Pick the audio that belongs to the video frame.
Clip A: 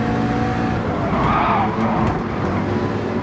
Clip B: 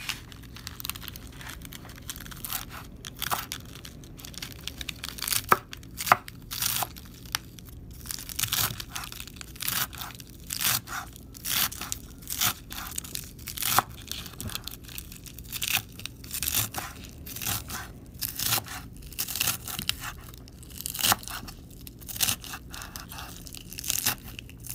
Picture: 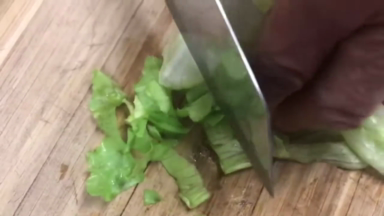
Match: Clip B